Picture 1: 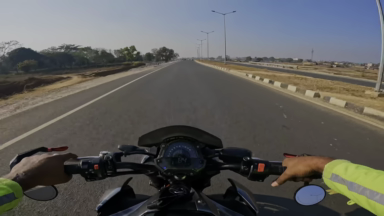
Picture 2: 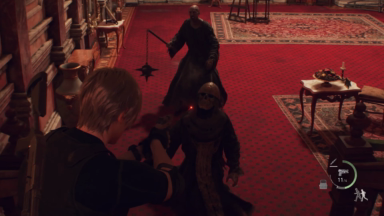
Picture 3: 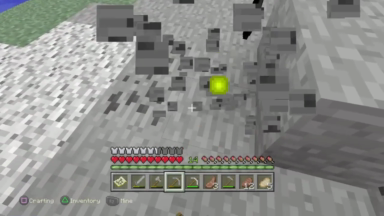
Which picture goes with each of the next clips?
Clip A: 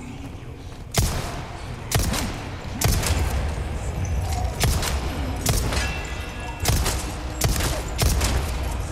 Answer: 2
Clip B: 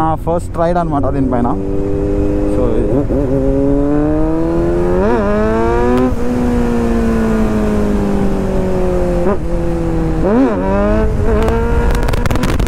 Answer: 1